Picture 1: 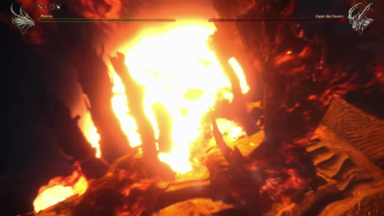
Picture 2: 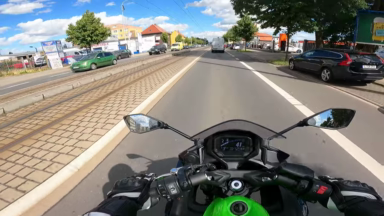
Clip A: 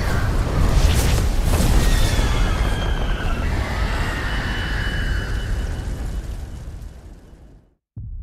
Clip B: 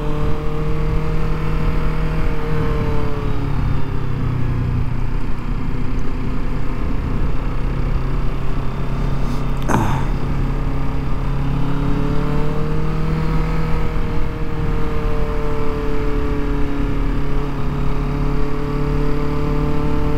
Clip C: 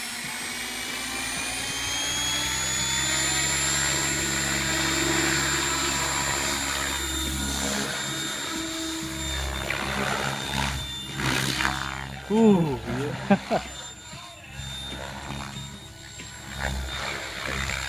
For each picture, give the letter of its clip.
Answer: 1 A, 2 B